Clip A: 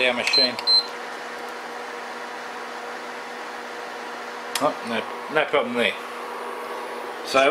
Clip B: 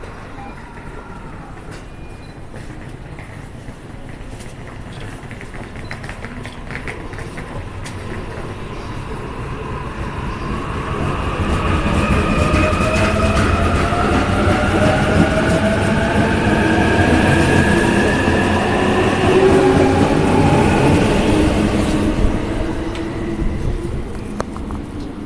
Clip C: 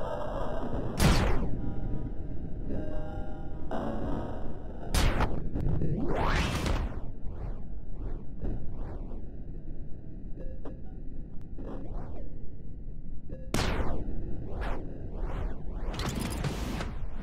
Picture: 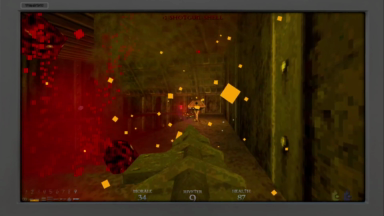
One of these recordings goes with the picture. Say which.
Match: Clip C